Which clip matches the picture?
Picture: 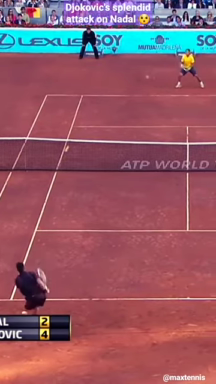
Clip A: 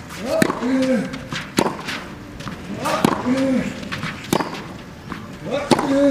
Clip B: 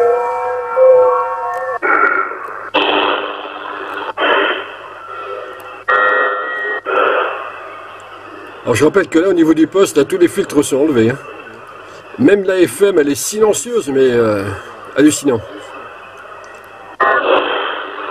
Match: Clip A